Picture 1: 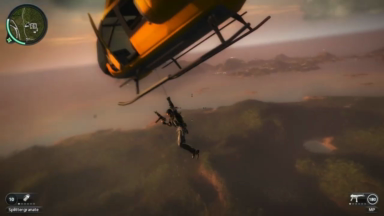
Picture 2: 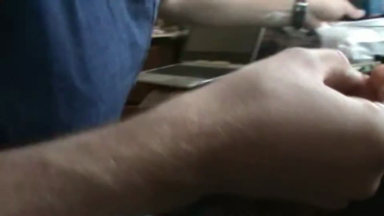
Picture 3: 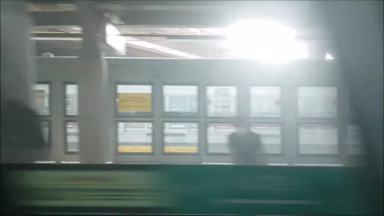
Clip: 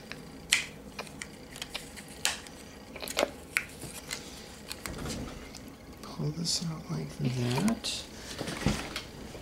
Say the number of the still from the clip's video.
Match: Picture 2